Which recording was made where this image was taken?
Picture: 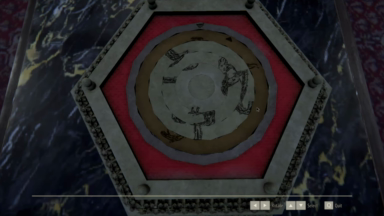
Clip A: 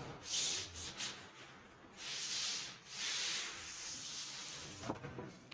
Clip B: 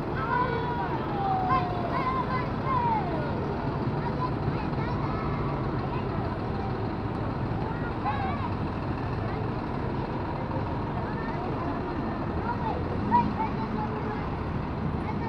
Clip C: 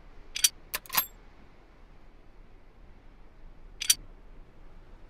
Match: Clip C